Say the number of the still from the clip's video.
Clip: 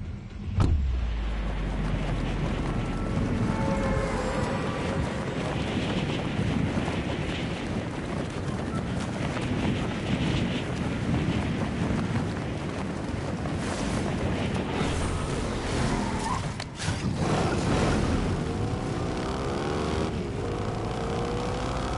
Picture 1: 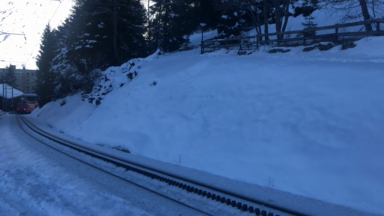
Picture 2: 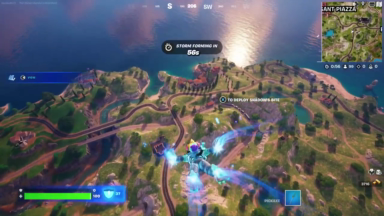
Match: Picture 2